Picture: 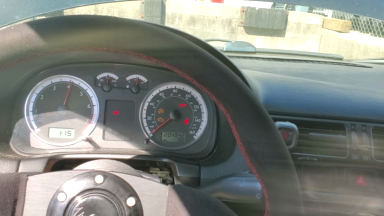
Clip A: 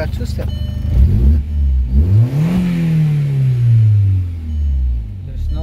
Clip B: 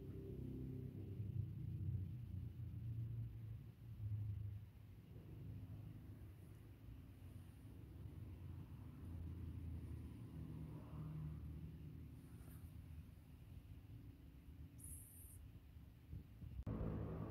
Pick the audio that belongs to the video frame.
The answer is A